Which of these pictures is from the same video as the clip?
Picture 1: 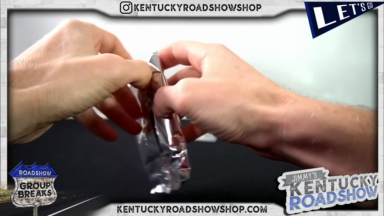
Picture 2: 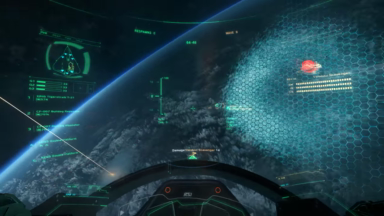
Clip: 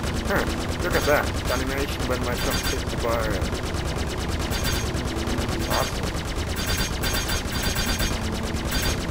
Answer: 2